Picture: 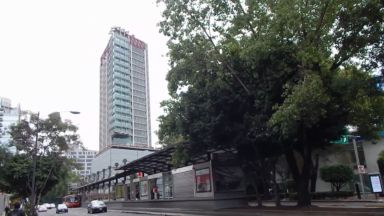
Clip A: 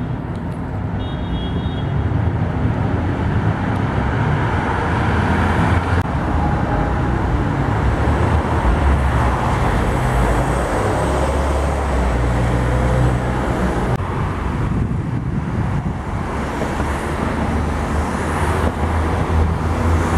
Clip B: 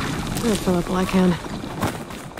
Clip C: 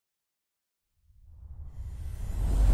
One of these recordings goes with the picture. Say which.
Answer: A